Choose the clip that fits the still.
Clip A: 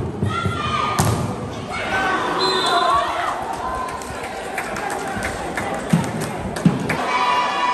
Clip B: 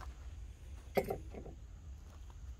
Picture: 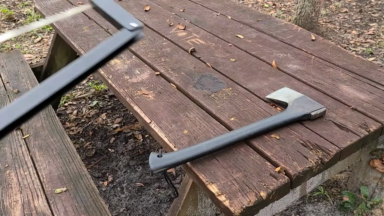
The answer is B